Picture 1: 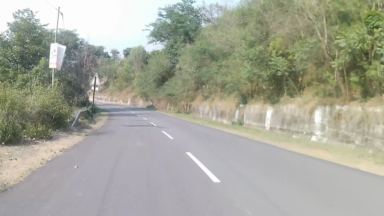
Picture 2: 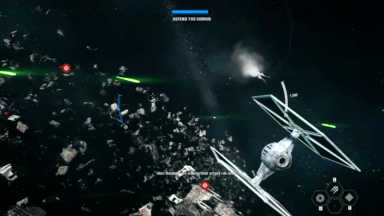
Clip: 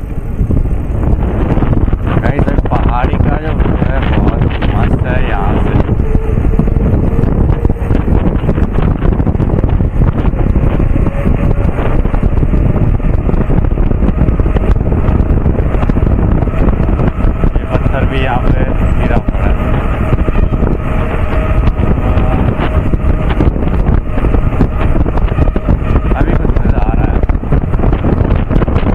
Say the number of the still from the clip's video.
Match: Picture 1